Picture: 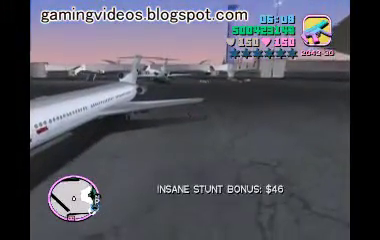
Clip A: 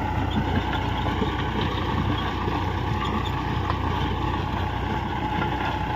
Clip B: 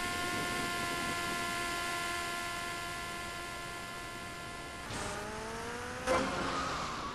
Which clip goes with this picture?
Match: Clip B